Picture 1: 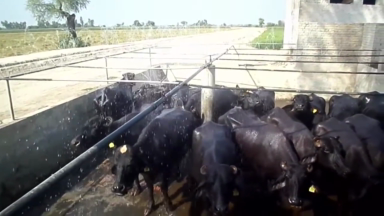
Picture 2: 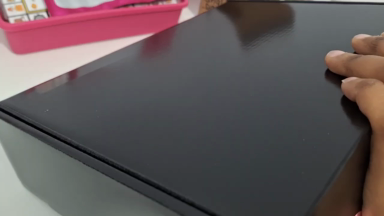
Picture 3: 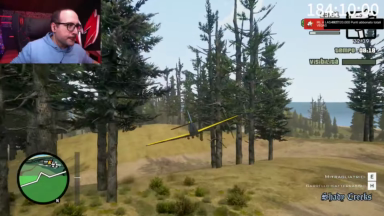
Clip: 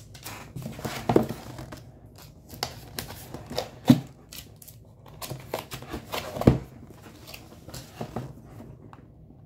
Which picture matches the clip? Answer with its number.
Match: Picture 2